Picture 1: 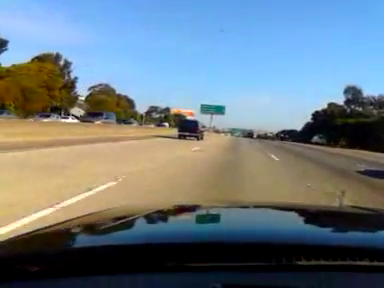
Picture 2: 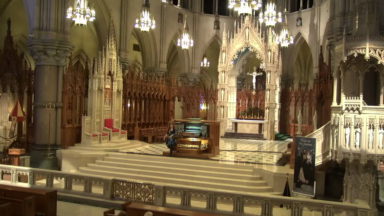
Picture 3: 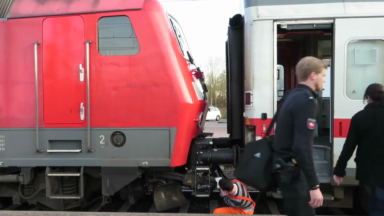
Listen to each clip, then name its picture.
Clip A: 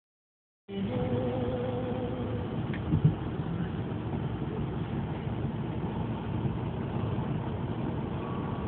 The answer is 1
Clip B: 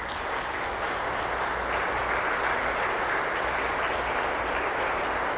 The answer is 2